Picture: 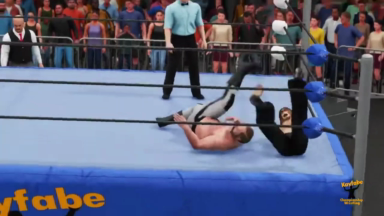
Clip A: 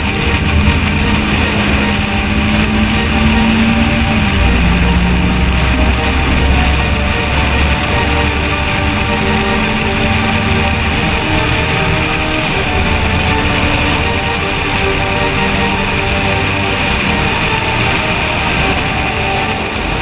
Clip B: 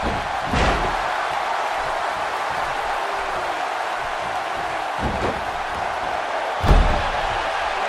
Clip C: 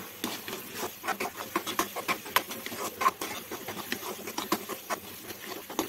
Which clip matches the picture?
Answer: B